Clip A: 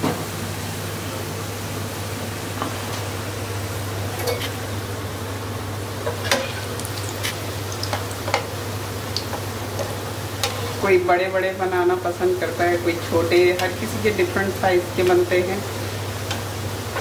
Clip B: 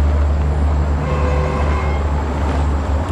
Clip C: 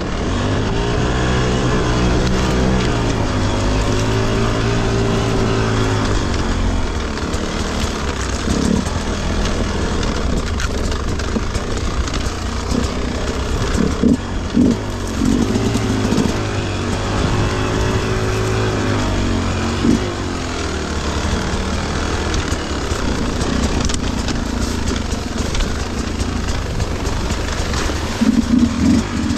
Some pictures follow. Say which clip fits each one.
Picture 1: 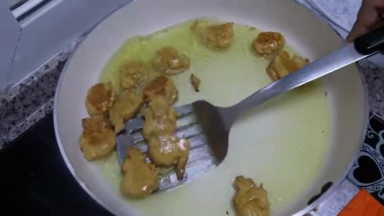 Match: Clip A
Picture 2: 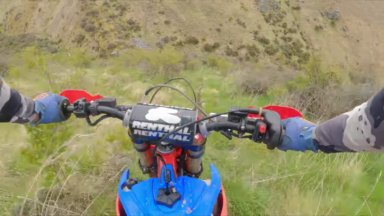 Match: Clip C